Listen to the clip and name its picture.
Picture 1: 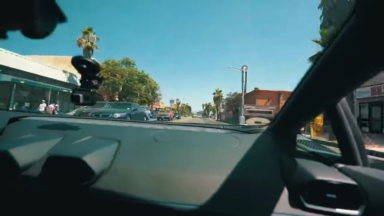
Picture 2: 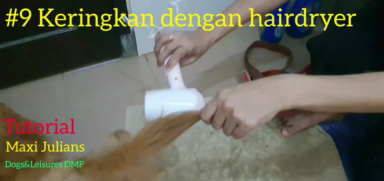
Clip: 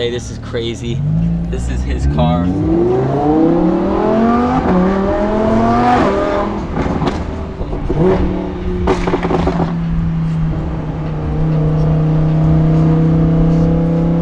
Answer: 1